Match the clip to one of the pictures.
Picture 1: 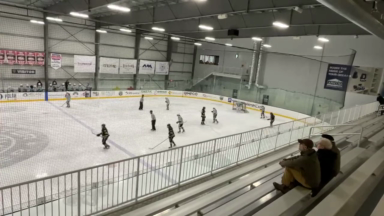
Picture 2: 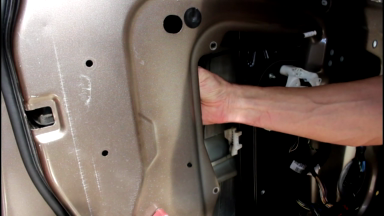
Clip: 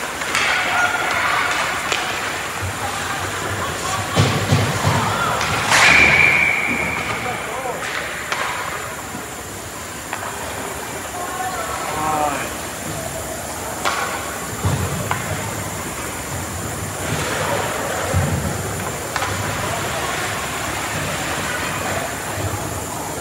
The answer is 1